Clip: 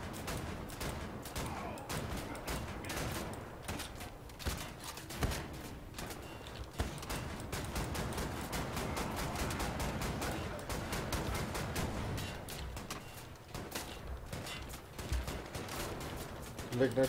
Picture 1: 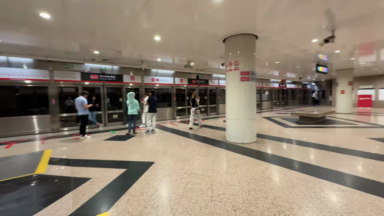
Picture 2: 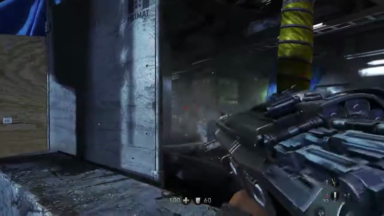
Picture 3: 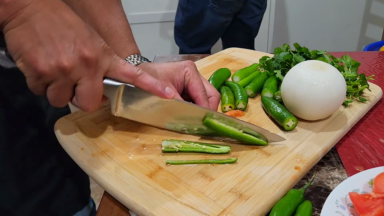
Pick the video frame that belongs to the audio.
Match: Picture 2